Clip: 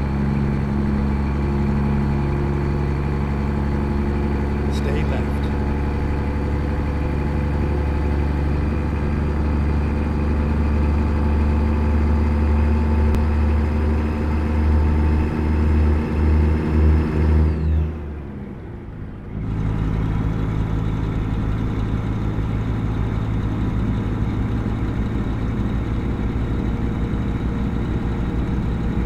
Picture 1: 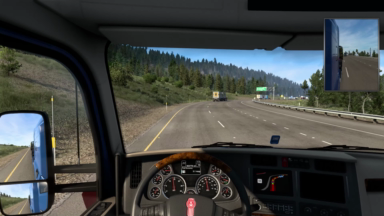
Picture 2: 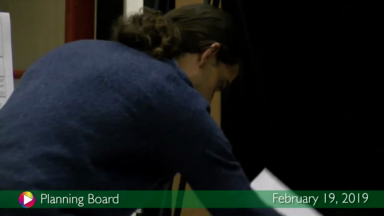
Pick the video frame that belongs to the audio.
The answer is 1